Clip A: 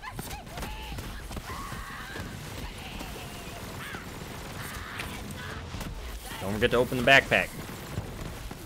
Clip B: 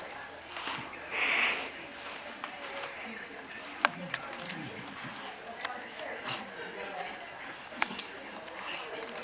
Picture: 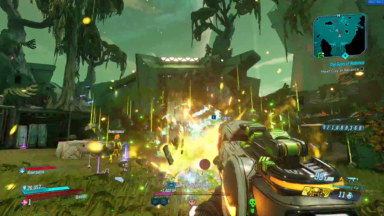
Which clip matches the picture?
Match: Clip A